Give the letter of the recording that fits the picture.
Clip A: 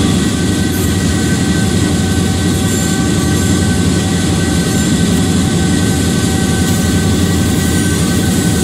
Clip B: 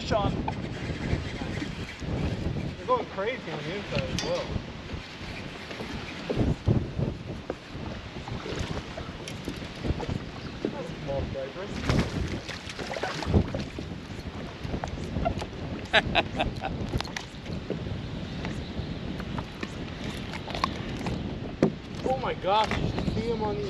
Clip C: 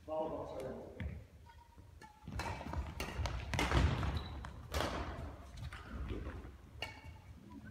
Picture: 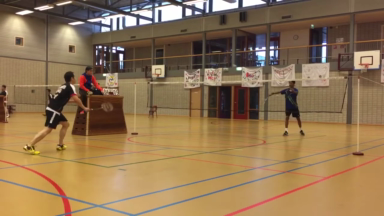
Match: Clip C